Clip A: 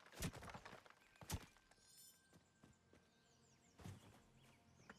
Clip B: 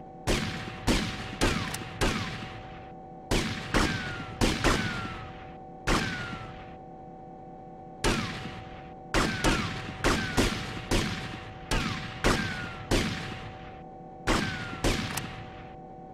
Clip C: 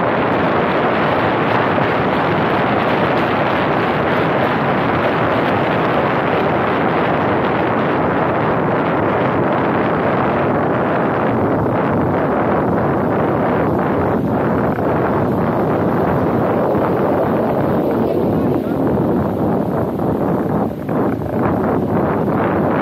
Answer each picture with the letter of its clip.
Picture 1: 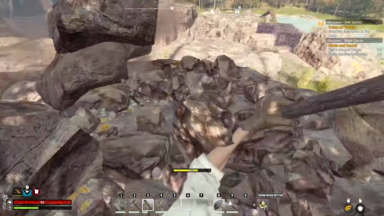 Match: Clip A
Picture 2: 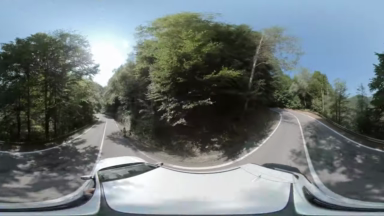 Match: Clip C